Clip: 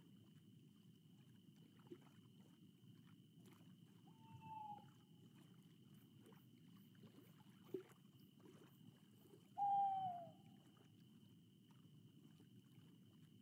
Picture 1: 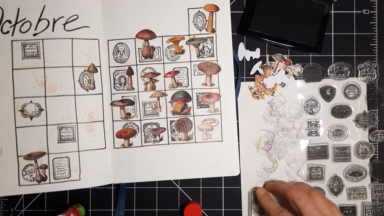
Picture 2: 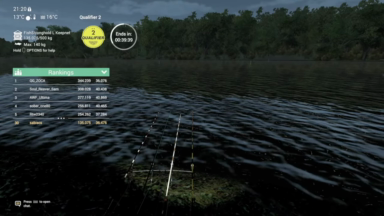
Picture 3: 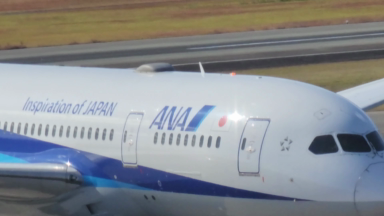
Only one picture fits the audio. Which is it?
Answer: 2